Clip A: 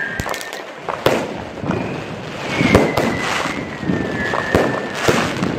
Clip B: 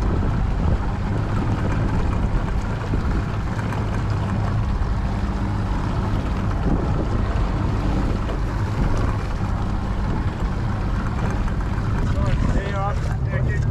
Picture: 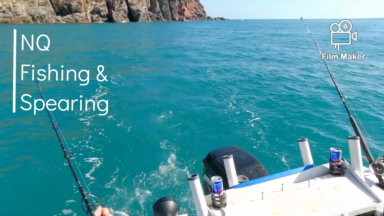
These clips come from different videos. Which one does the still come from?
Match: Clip B